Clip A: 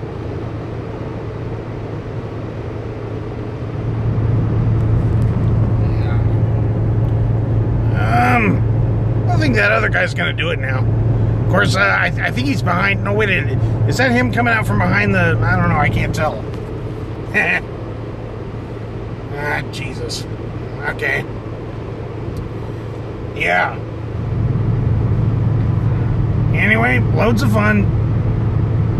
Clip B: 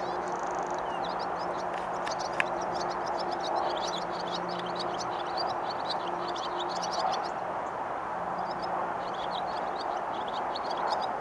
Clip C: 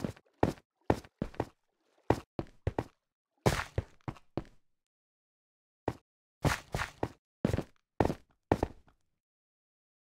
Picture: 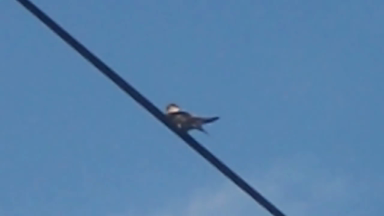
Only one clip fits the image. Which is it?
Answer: B